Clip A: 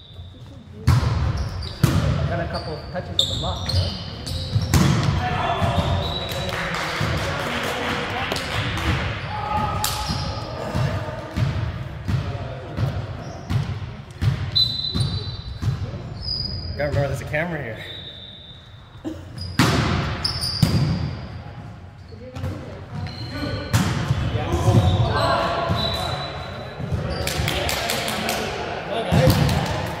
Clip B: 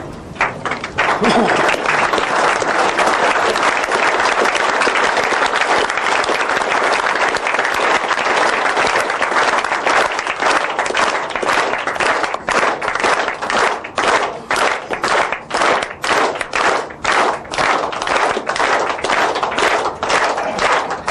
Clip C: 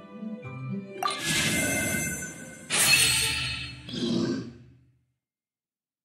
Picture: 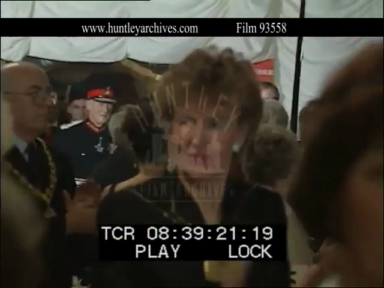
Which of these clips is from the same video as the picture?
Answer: B